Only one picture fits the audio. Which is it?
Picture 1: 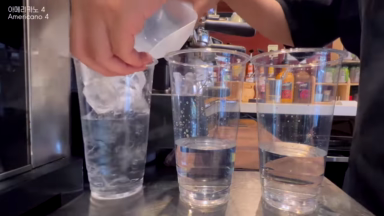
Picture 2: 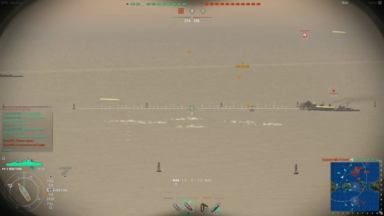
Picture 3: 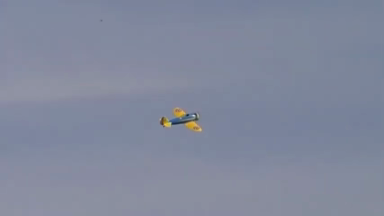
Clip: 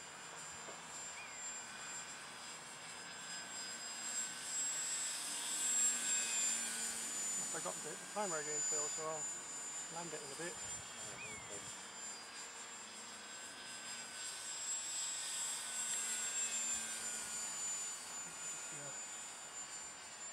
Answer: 3